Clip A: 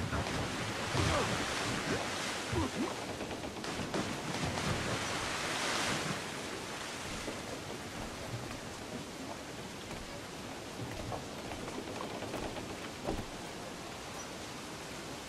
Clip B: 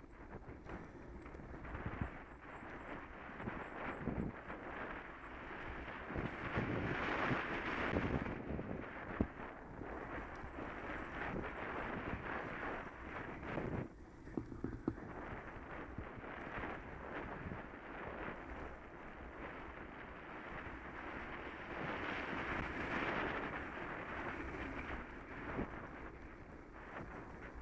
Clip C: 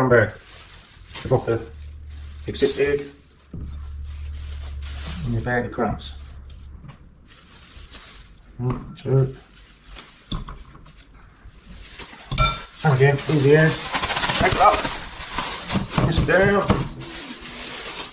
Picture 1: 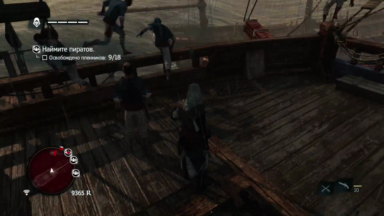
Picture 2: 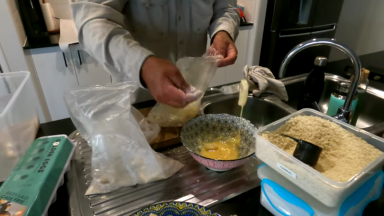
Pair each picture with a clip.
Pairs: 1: A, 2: C